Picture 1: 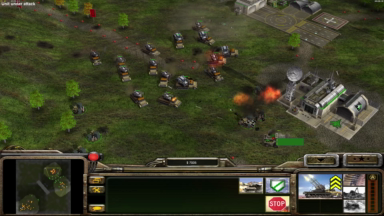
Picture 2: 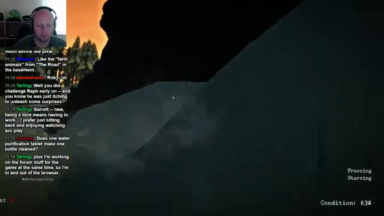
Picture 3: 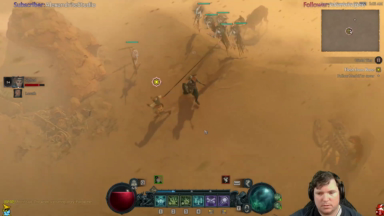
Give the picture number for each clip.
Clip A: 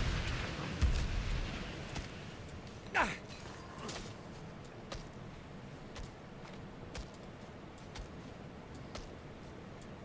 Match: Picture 3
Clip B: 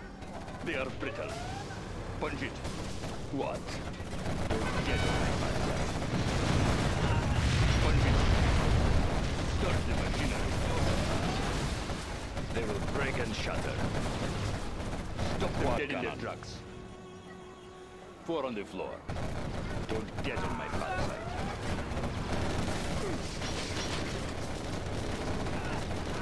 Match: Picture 1